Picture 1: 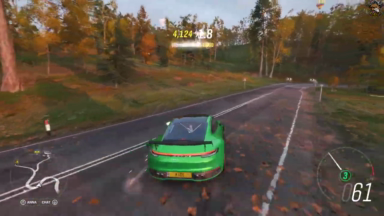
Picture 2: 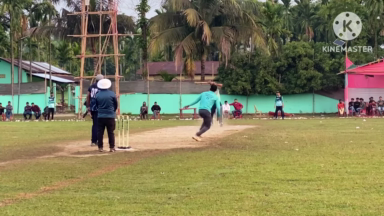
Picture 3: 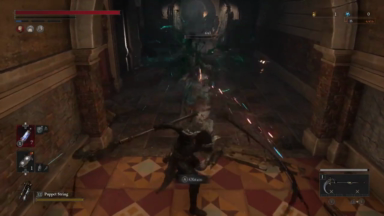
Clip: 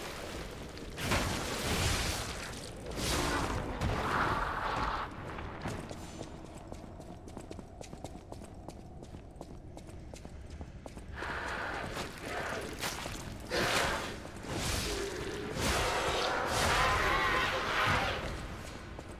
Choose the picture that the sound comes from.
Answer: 3